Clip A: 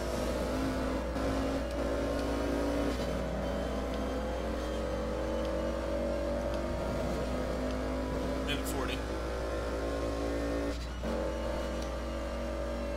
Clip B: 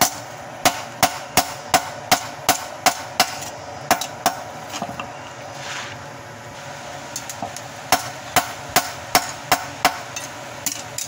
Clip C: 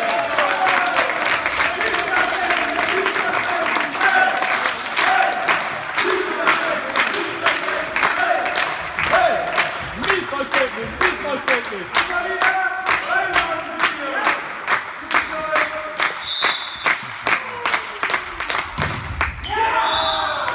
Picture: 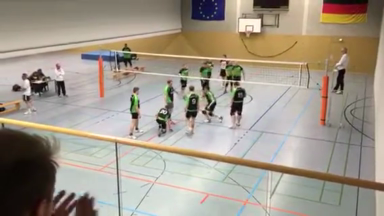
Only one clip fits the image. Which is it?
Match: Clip C